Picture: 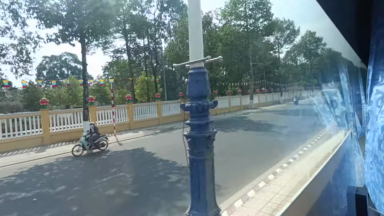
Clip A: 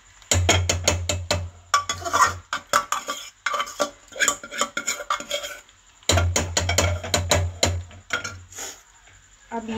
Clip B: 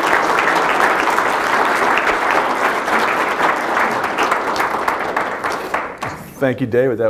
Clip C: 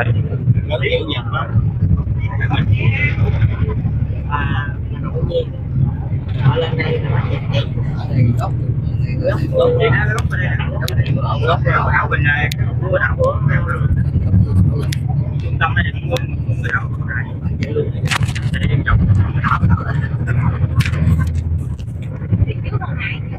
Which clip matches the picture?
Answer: C